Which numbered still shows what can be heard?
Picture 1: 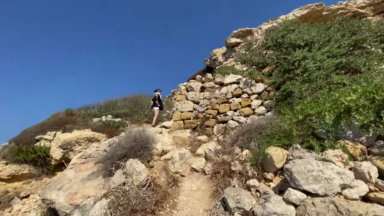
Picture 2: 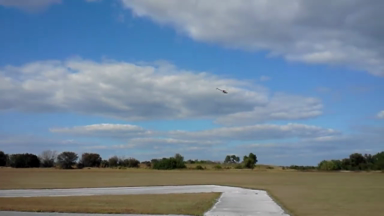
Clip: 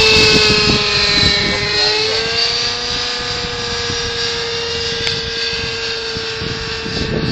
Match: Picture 2